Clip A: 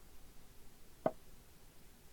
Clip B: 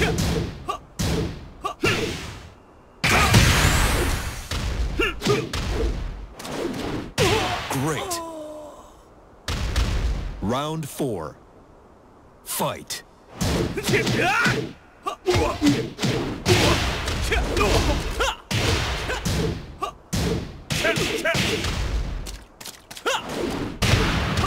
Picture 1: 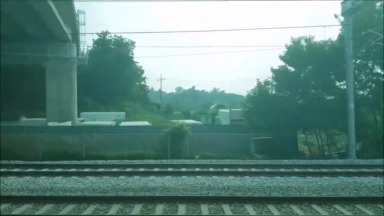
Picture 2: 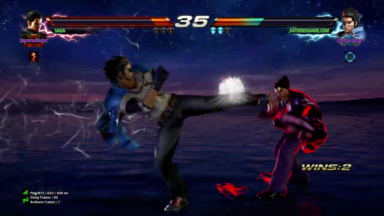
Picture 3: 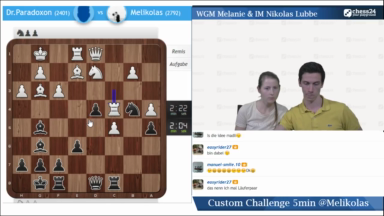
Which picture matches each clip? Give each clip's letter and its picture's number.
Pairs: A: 3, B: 2